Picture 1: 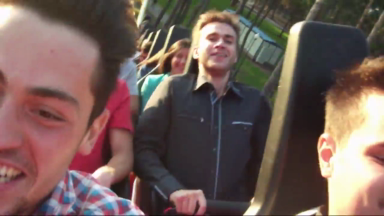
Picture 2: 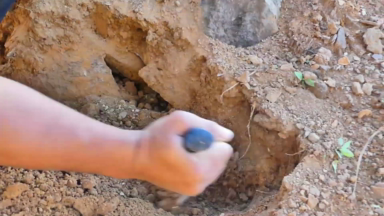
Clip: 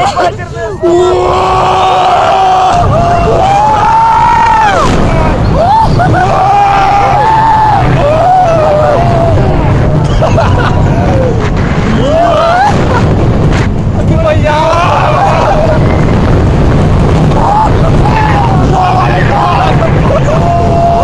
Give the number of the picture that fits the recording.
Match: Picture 1